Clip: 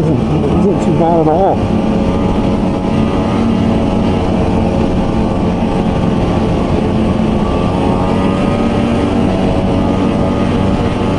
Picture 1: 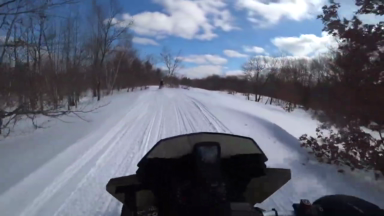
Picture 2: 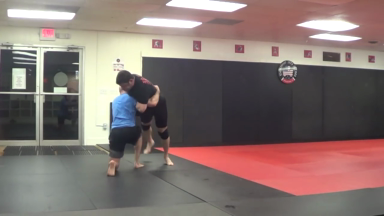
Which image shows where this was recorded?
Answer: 1